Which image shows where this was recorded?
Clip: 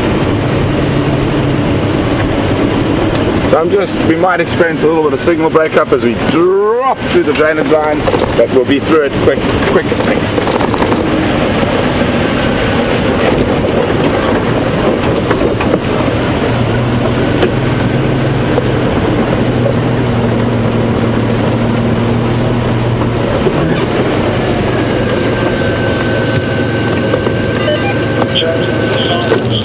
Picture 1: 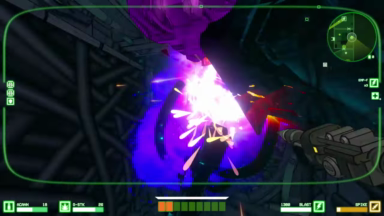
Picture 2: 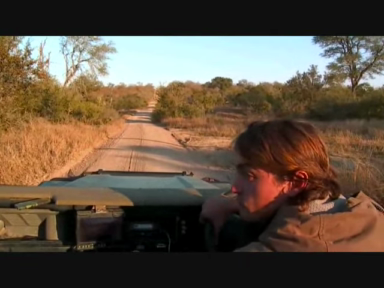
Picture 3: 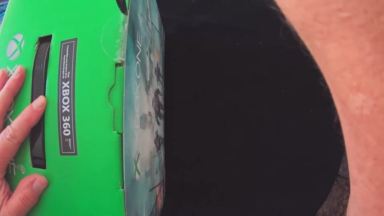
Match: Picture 2